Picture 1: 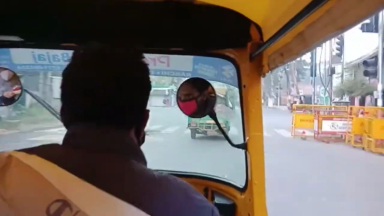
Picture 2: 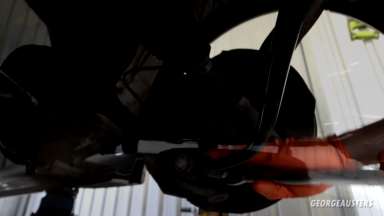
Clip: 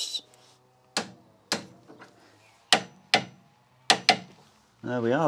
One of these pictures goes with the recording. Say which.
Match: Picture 2